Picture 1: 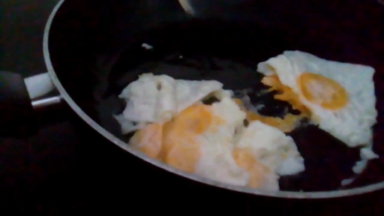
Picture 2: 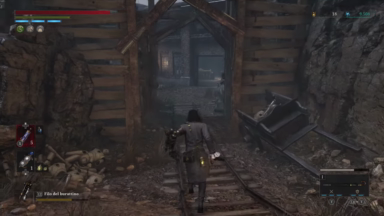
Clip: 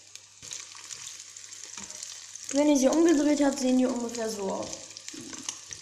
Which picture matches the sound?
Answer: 1